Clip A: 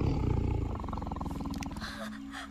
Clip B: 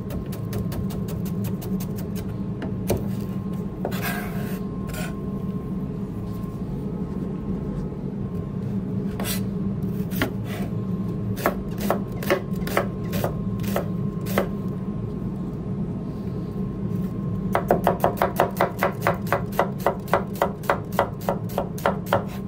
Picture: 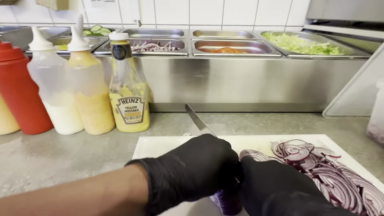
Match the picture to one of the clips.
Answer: B